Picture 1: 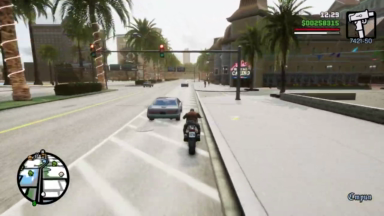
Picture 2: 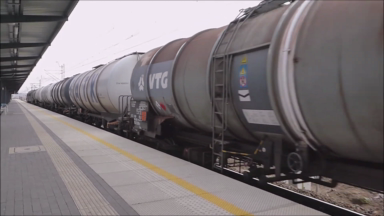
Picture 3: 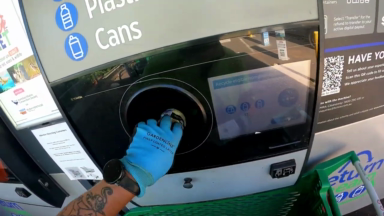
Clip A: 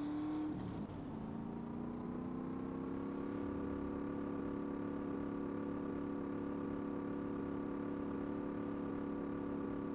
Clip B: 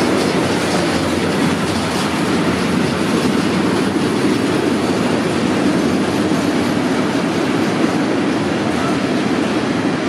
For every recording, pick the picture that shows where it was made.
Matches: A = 1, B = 2